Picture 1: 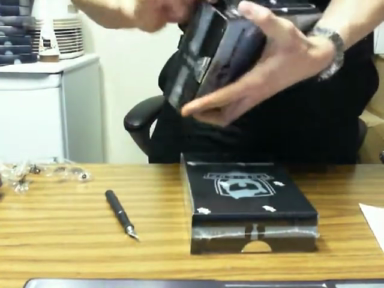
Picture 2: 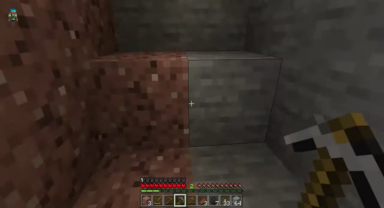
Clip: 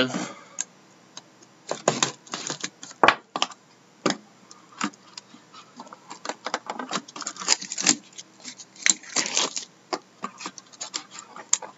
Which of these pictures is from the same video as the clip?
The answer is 1